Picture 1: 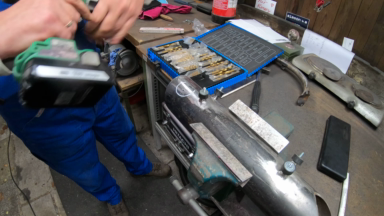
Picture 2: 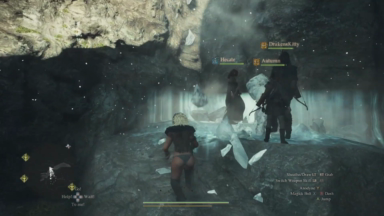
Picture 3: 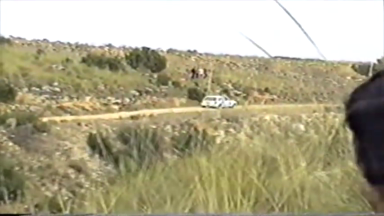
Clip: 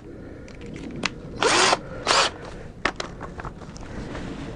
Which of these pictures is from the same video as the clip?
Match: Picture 1